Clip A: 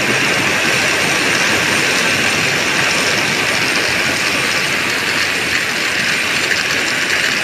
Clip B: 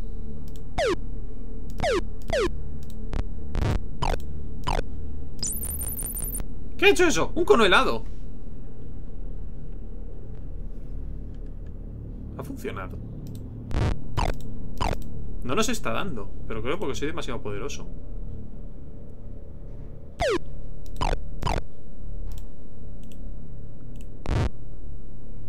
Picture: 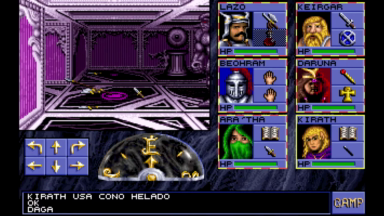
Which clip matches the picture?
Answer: B